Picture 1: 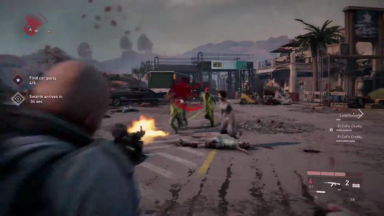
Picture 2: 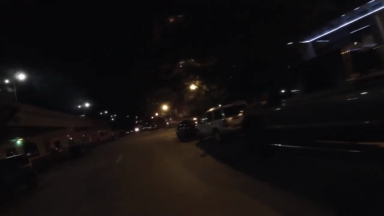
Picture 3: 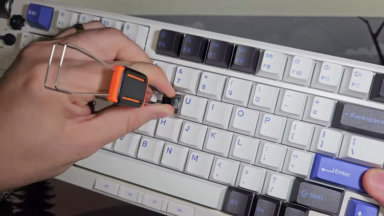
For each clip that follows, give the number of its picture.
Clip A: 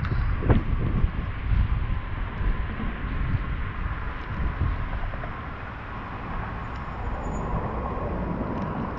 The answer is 2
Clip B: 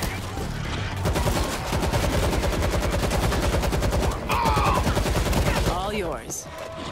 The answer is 1